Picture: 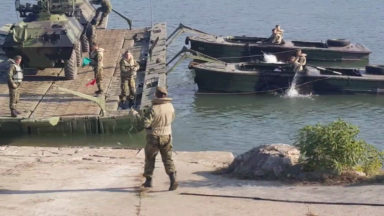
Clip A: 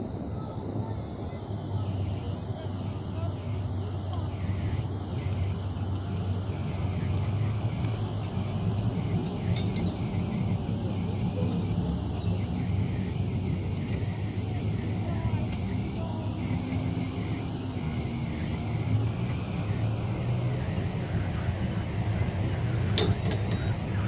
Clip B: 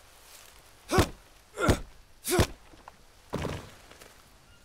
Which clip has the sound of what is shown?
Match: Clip A